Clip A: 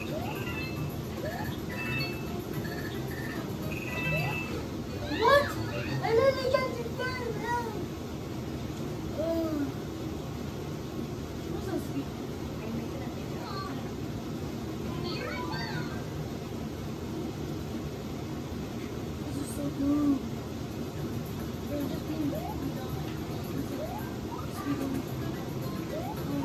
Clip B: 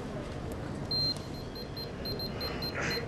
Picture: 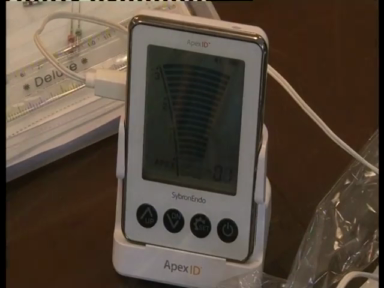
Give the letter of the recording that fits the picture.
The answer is B